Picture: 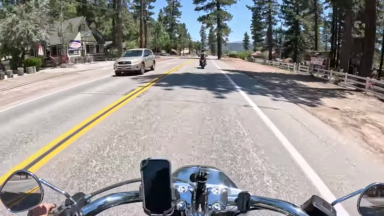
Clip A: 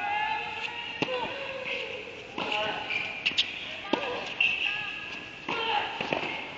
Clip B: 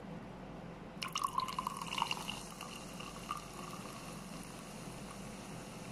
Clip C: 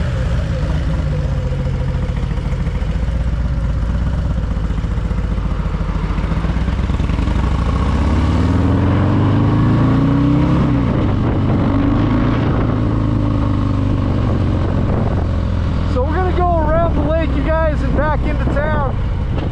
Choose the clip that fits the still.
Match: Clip C